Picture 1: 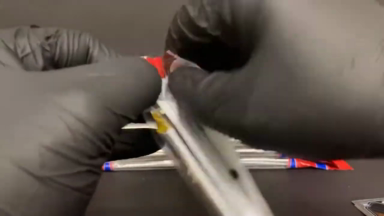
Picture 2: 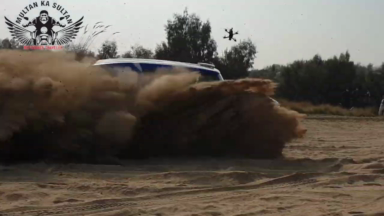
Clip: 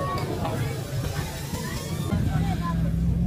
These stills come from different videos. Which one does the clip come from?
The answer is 2